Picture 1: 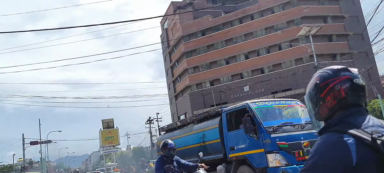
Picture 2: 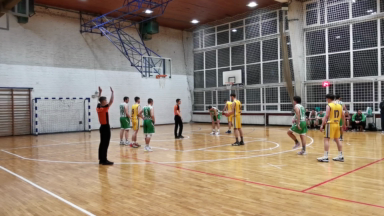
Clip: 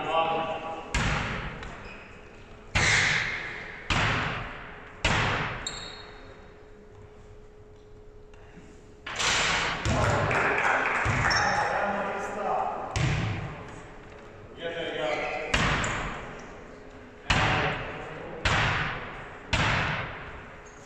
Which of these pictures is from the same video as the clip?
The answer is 2